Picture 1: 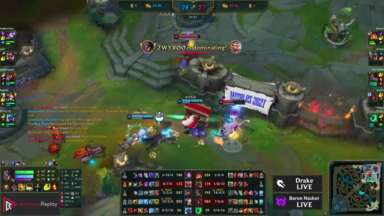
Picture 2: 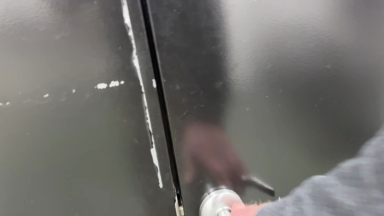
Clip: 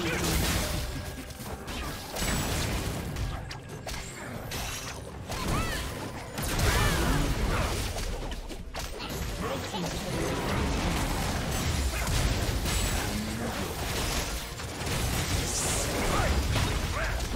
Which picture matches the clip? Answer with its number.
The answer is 1